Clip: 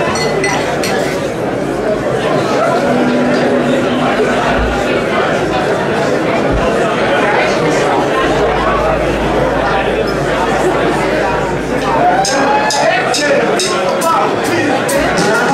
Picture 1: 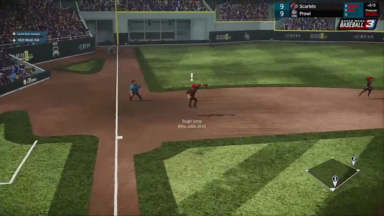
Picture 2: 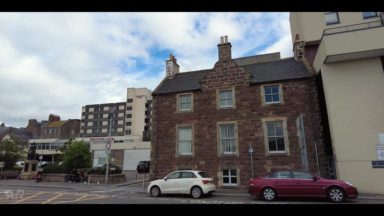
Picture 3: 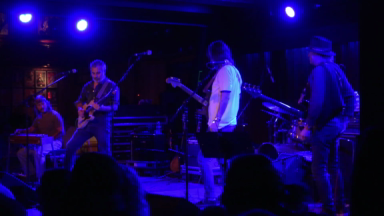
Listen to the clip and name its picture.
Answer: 3